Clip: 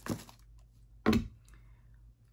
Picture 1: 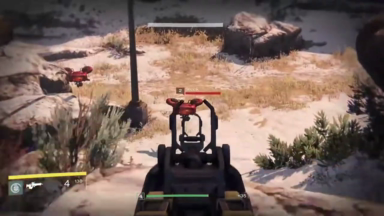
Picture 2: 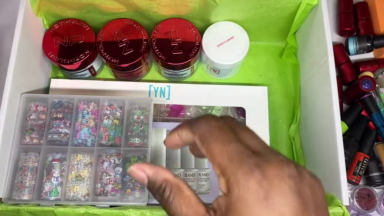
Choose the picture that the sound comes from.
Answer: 2